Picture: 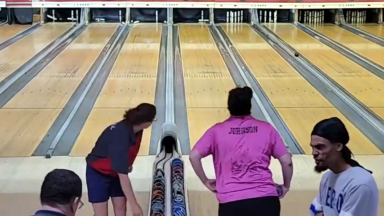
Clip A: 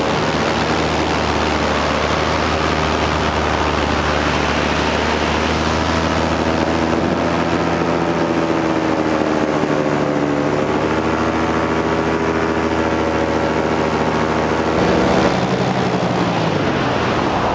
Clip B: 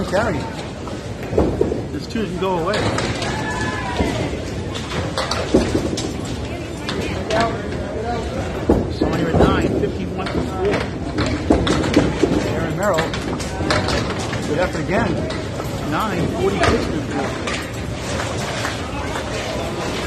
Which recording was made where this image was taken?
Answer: B